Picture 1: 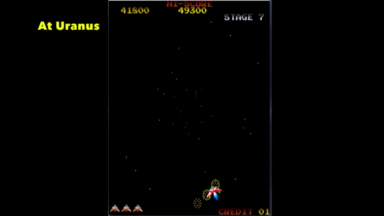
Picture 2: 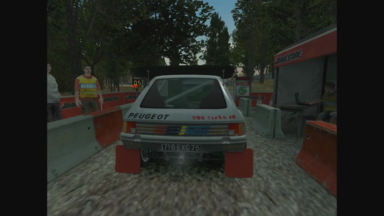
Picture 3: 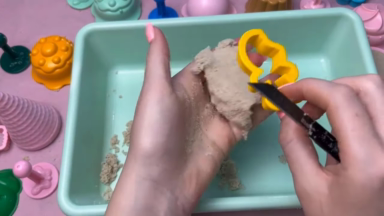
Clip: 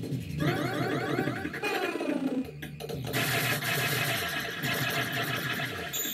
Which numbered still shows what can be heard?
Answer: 1